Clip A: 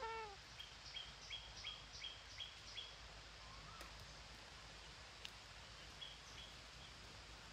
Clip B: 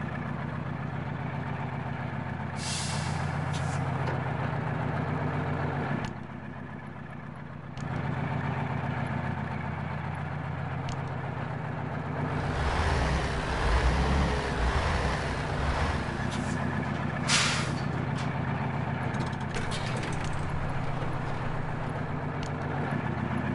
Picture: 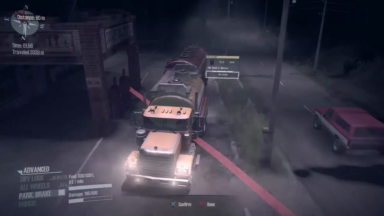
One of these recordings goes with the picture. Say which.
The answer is B